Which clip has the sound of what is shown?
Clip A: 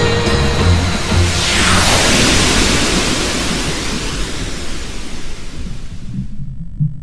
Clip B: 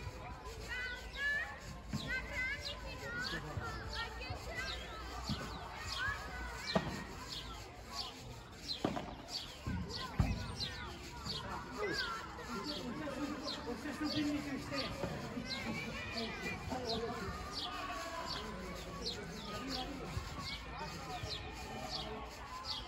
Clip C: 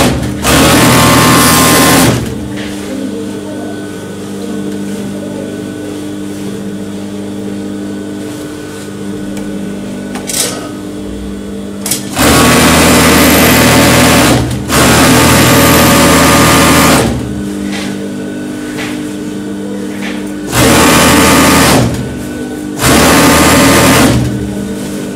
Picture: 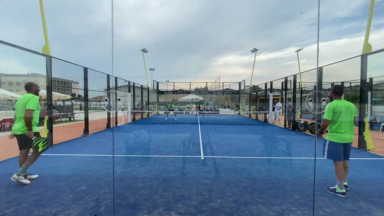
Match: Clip B